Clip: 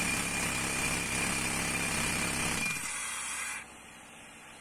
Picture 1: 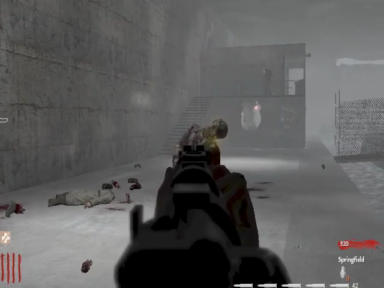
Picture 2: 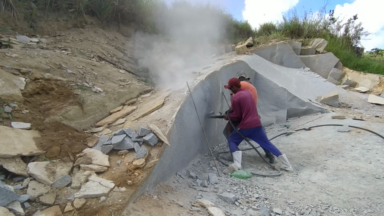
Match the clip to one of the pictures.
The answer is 2